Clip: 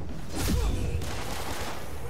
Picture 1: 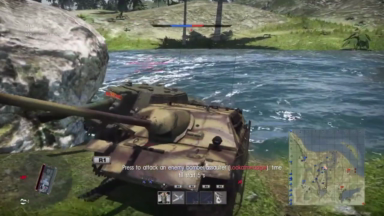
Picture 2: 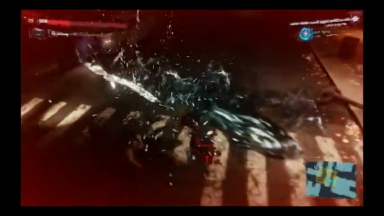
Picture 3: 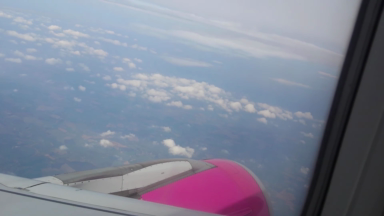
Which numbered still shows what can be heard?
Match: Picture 2